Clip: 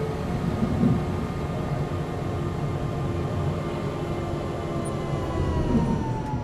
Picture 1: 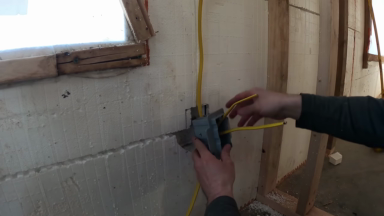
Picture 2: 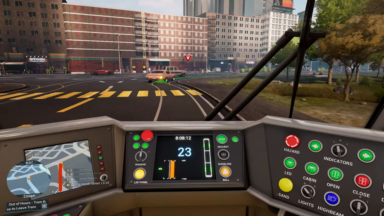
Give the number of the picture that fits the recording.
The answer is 2